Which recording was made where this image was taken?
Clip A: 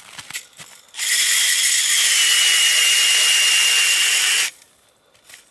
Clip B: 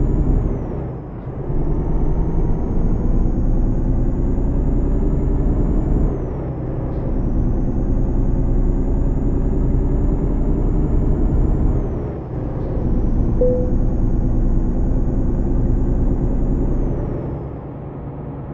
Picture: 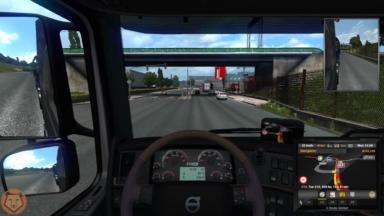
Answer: B